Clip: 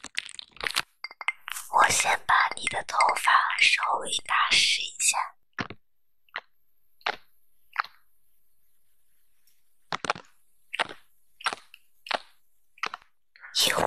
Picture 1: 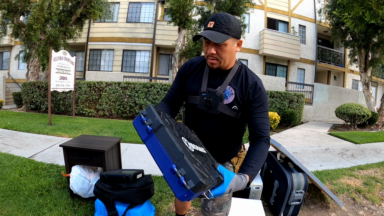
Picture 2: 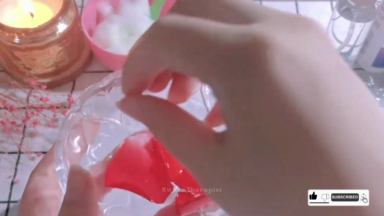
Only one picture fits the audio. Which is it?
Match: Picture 2